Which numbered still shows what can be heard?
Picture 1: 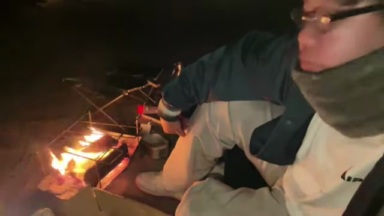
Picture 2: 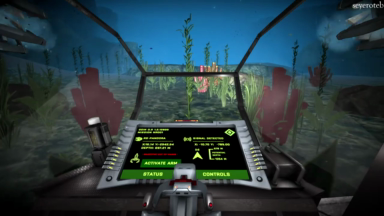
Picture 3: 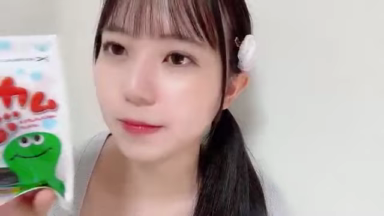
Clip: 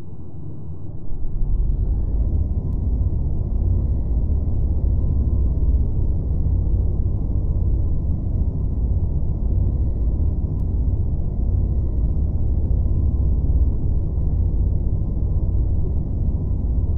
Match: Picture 2